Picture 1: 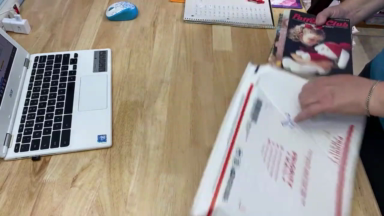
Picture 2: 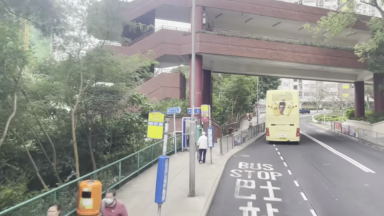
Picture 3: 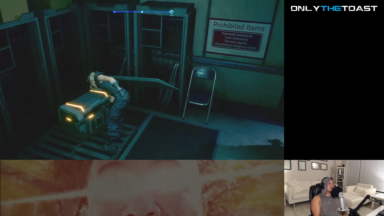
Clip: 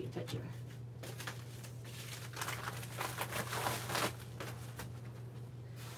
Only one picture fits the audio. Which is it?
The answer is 1